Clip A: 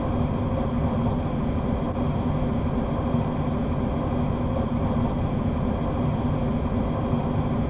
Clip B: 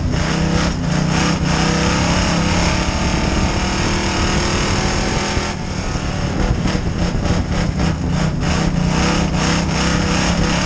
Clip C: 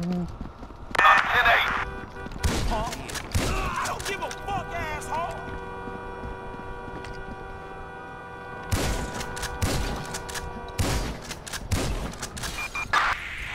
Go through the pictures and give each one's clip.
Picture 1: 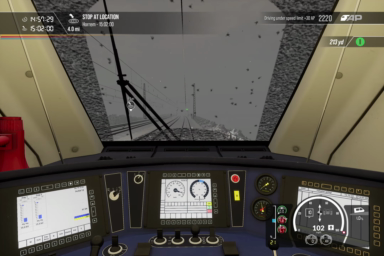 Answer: A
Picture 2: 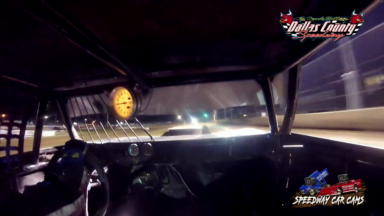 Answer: B